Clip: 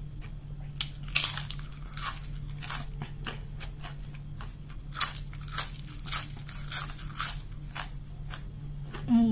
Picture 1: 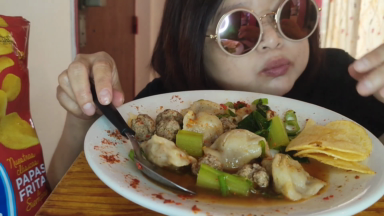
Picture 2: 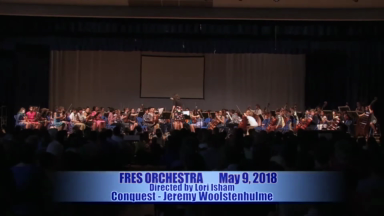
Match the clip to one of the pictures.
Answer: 1